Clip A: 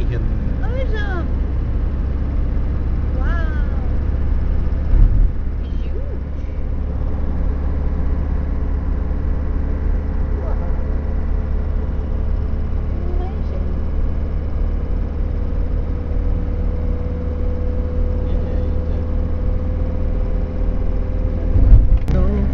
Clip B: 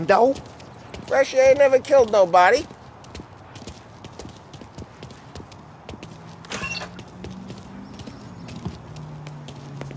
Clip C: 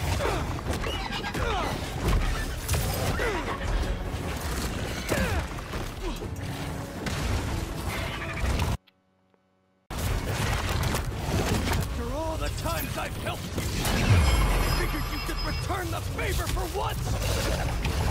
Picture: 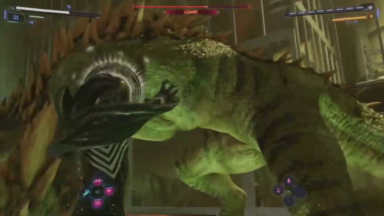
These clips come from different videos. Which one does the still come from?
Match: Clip C